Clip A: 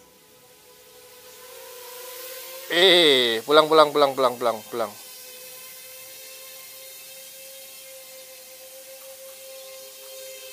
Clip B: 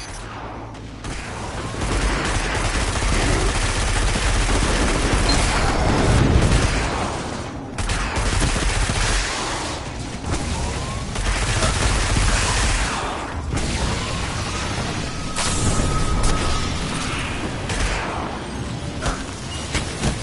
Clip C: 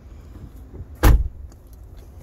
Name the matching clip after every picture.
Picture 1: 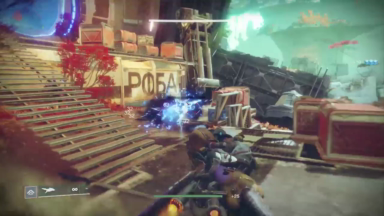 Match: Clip B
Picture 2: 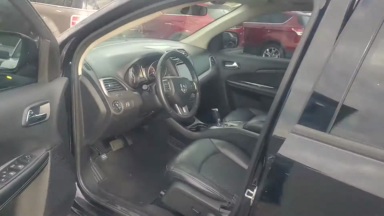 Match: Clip C